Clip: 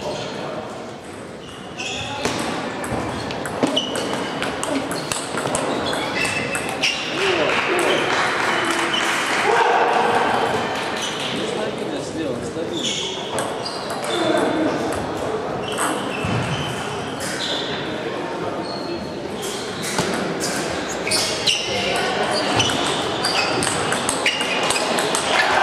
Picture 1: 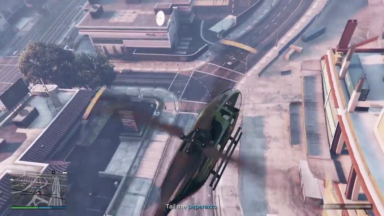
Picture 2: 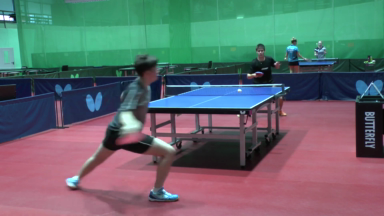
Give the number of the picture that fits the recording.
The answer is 2